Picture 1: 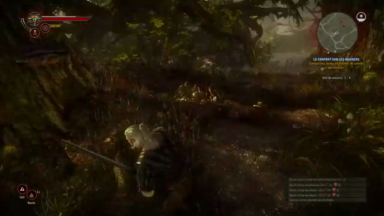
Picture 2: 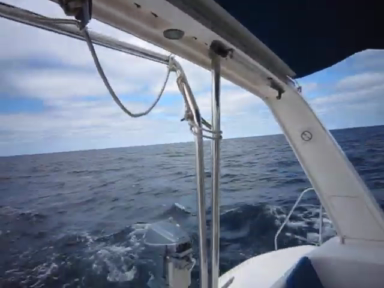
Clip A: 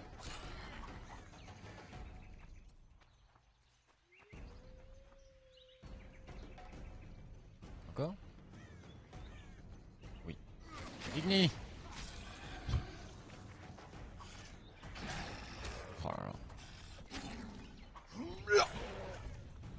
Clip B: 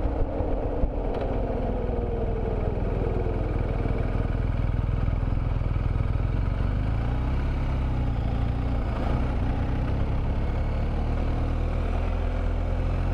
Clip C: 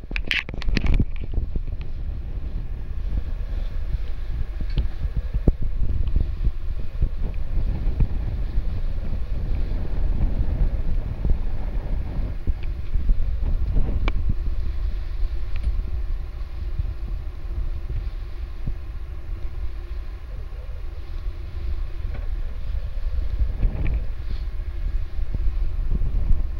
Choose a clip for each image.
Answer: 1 A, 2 C